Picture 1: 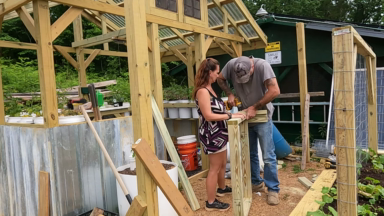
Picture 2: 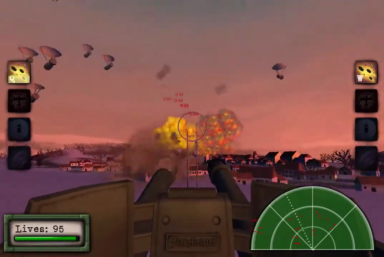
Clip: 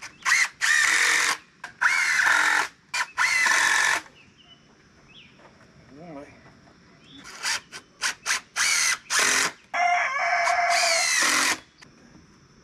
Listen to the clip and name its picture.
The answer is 1